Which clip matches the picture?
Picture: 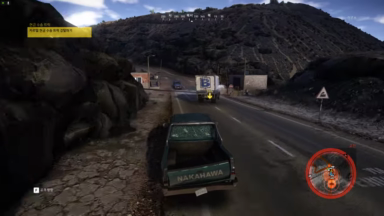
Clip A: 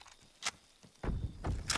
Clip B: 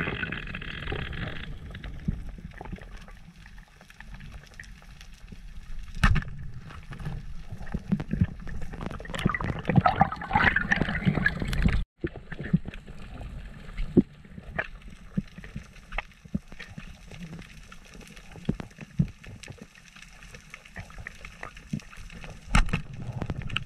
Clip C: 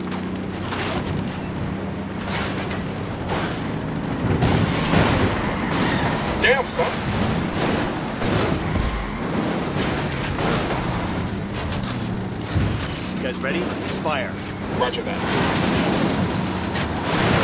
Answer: C